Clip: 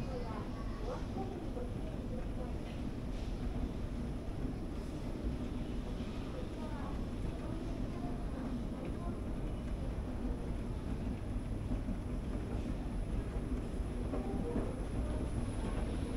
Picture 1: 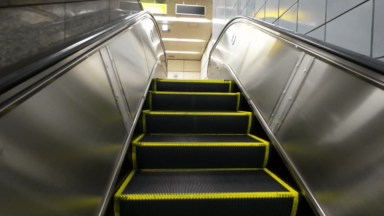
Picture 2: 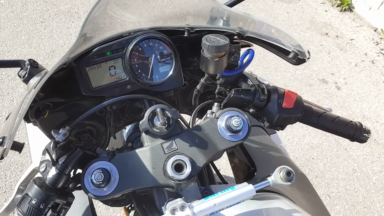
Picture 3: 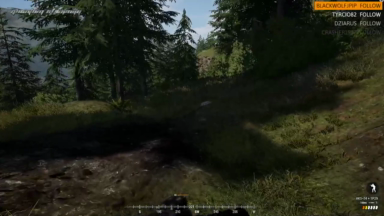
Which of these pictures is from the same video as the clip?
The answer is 1